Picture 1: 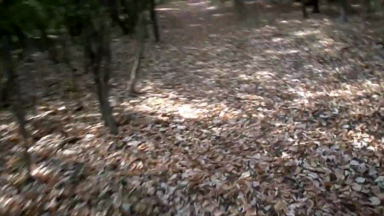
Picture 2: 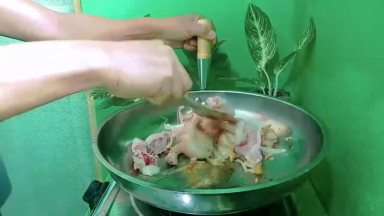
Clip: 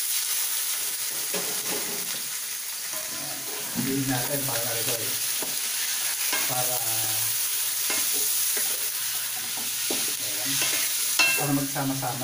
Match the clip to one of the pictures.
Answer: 2